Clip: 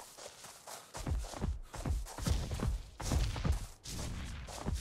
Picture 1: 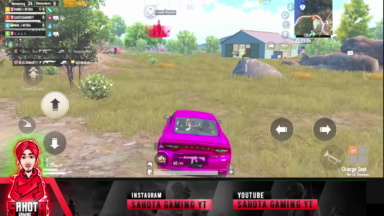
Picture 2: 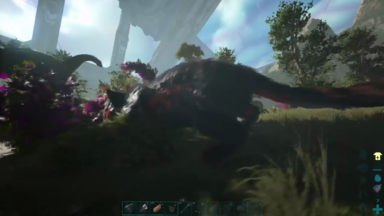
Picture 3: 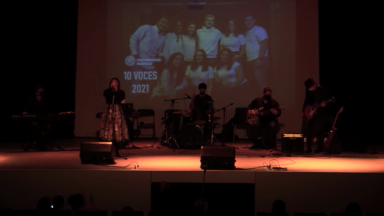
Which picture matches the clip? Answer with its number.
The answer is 2